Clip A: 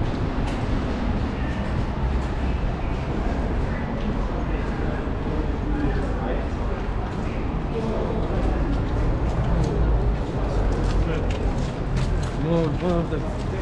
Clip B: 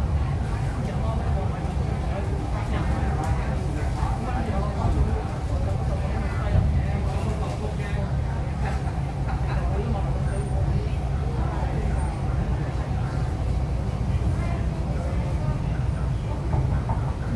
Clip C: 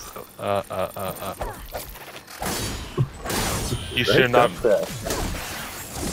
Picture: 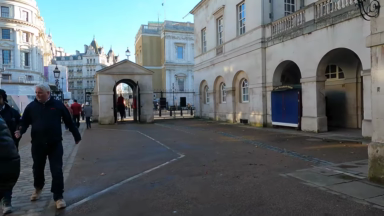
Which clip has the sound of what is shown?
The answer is A